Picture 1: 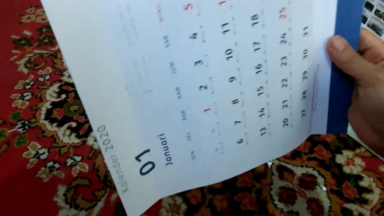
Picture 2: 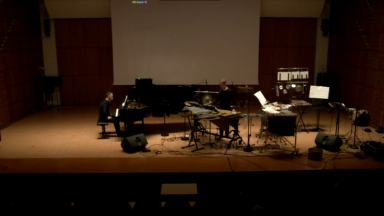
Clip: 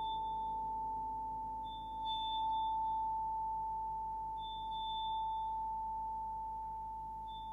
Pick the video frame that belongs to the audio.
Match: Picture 2